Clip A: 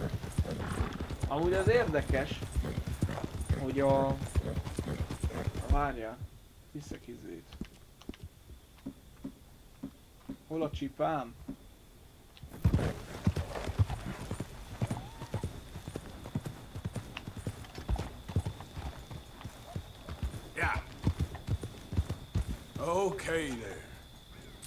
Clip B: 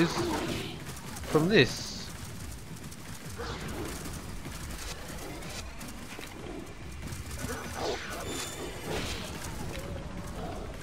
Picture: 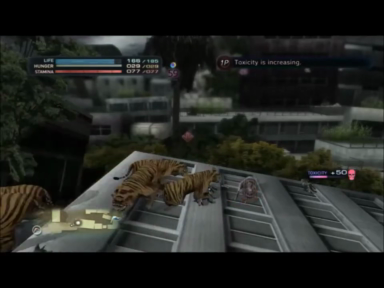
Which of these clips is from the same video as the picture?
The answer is B